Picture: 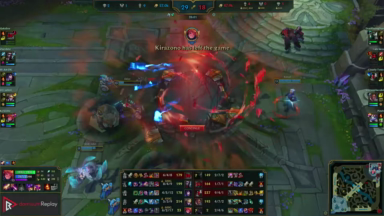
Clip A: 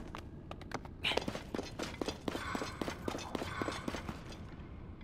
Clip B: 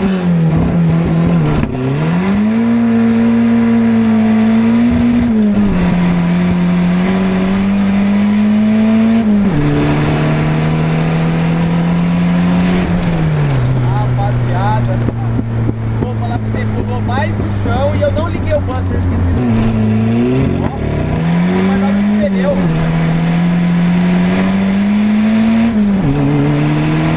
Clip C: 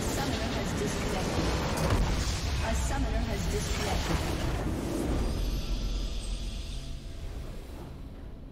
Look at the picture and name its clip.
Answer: C